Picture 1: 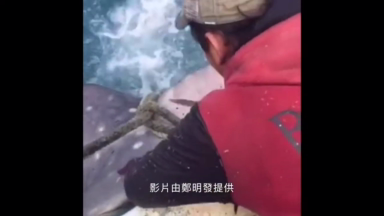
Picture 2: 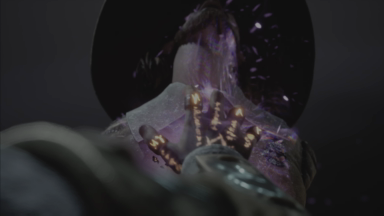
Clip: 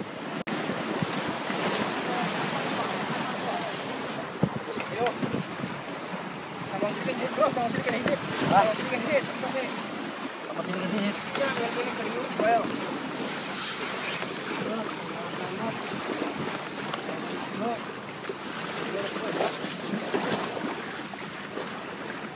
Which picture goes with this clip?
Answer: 1